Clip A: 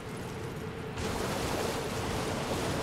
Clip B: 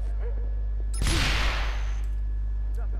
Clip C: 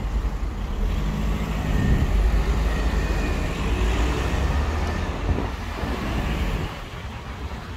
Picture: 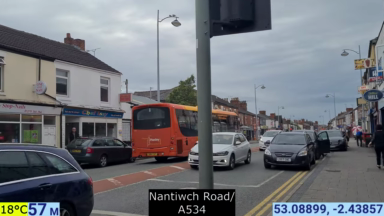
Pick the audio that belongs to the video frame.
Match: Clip C